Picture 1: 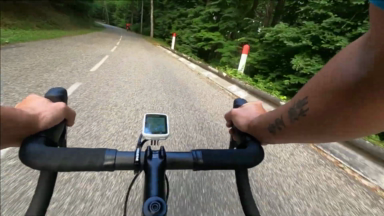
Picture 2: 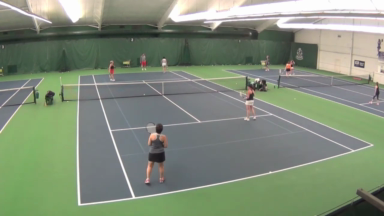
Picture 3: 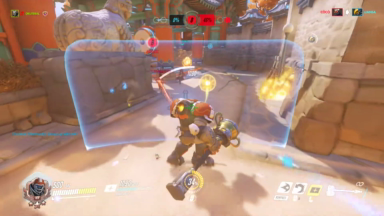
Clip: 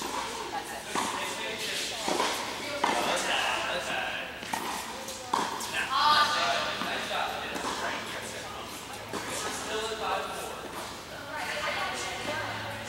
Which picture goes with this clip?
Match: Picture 2